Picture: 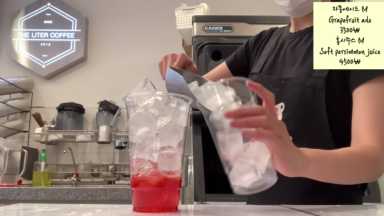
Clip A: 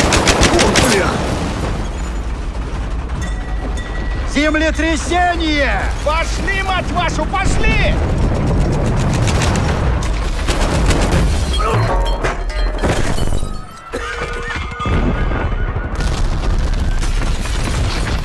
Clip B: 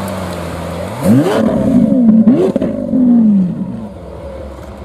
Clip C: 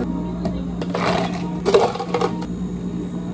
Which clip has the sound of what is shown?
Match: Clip C